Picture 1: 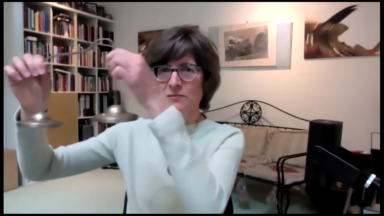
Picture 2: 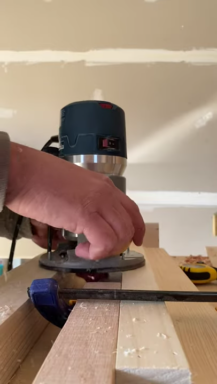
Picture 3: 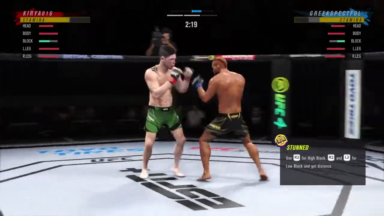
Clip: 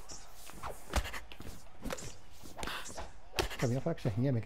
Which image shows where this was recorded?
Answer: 3